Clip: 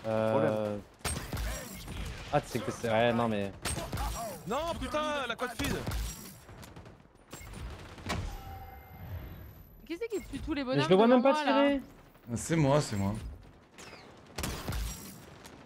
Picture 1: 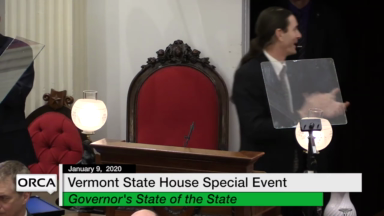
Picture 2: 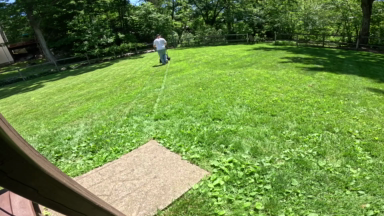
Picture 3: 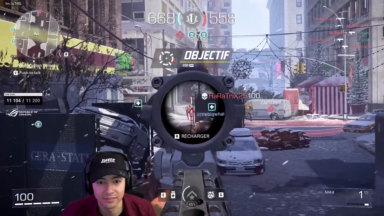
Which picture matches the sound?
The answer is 3